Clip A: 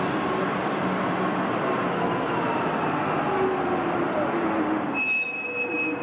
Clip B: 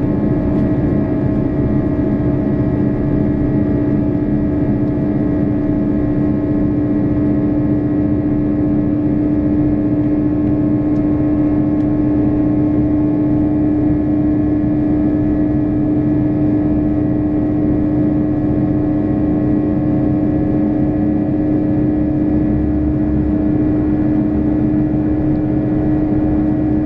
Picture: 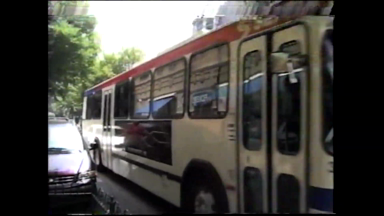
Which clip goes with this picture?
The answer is A